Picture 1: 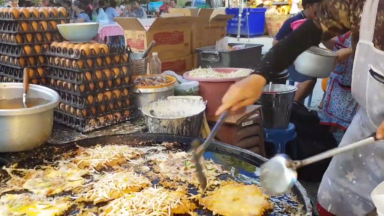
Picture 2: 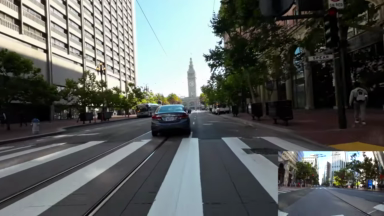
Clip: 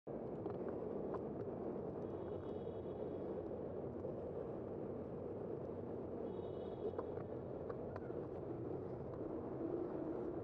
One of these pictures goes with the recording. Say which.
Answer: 2